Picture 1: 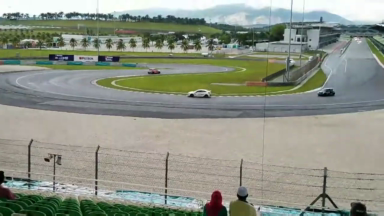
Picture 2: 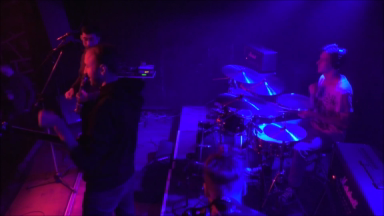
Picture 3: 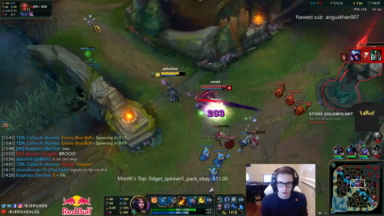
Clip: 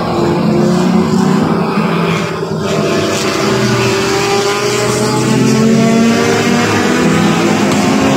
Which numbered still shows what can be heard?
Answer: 1